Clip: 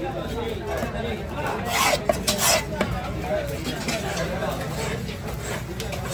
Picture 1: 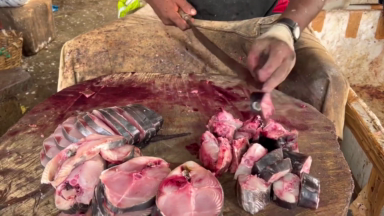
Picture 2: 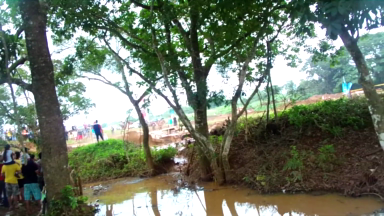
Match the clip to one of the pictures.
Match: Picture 1